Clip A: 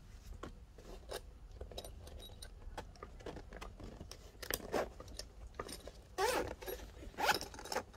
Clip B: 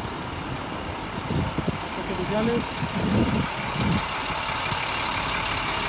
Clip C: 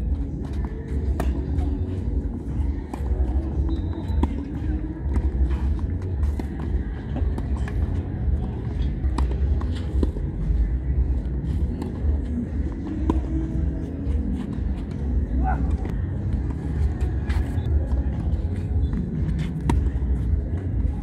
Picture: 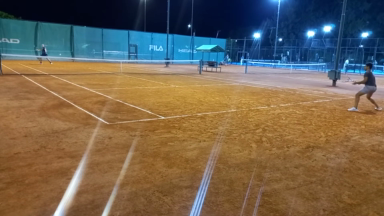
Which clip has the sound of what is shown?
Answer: C